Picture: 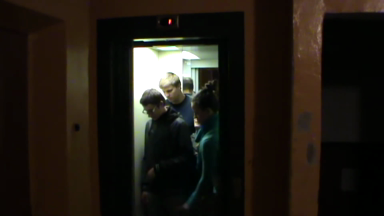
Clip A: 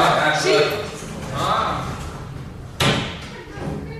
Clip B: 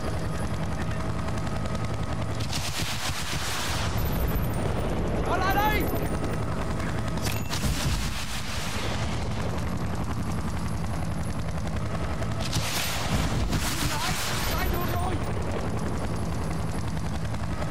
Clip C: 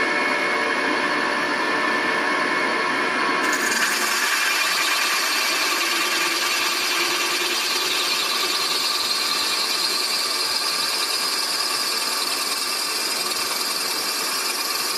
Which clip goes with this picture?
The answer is A